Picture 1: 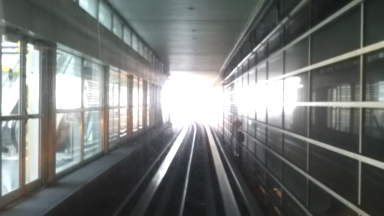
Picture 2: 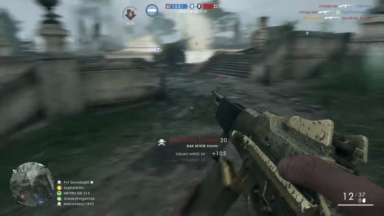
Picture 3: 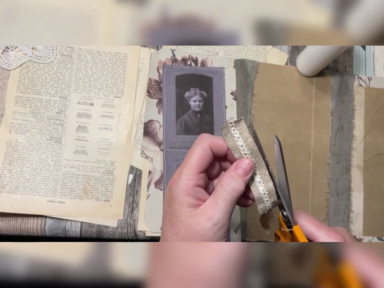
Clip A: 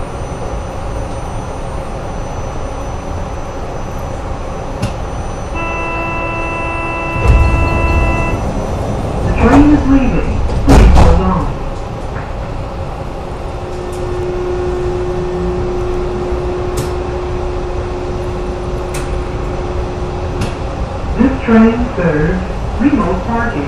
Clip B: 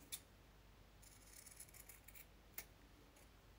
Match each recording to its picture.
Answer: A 1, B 3